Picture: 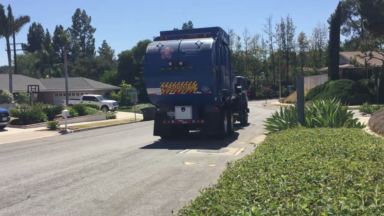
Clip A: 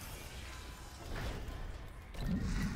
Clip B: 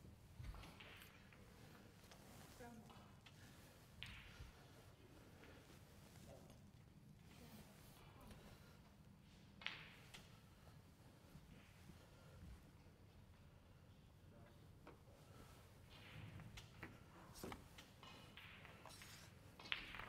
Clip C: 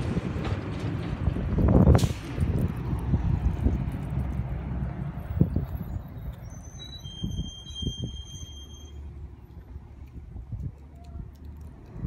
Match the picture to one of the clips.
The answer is C